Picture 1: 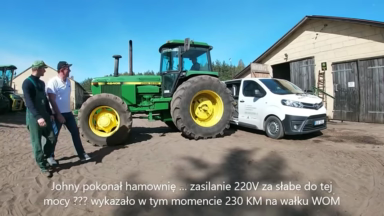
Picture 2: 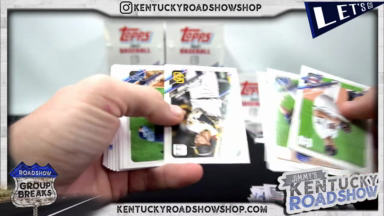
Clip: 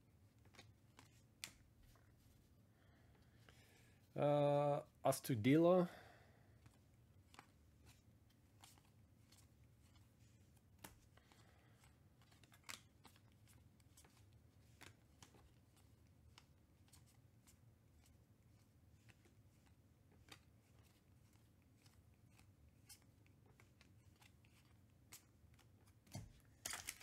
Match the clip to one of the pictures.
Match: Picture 2